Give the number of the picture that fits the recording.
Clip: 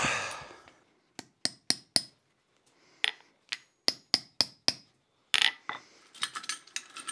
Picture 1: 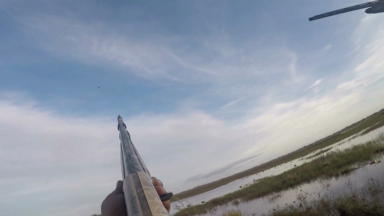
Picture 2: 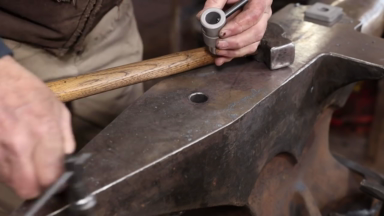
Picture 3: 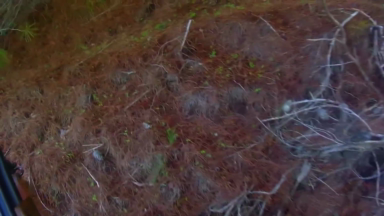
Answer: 2